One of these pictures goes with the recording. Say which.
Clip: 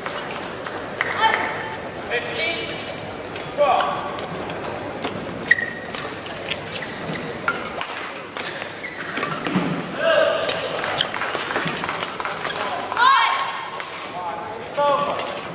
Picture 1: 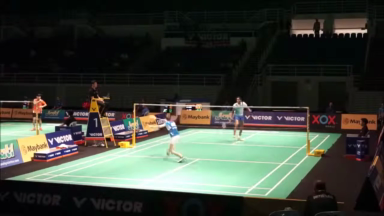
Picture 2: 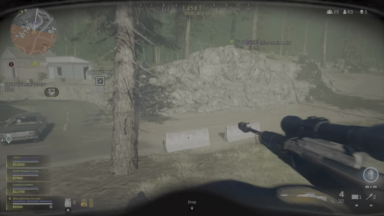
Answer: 1